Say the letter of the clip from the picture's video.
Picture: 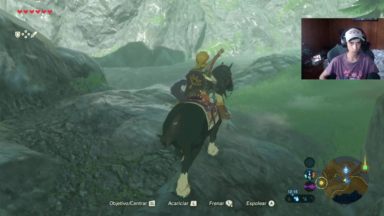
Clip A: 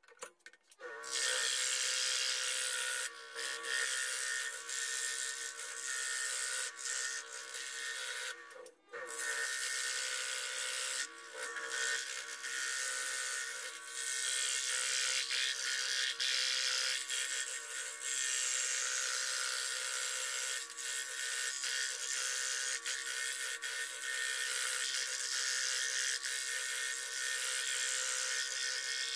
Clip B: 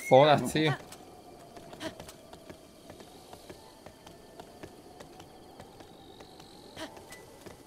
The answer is B